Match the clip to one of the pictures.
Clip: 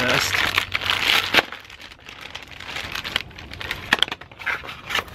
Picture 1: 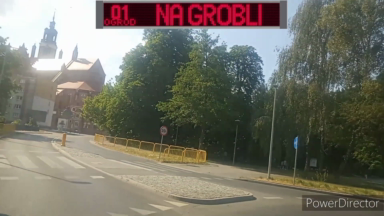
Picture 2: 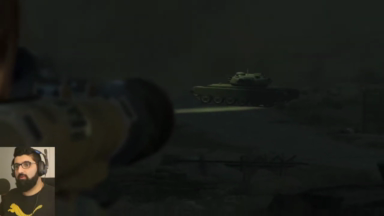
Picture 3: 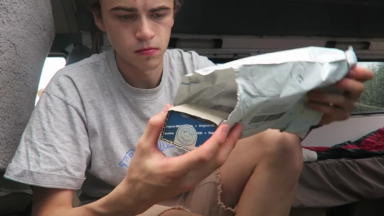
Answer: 3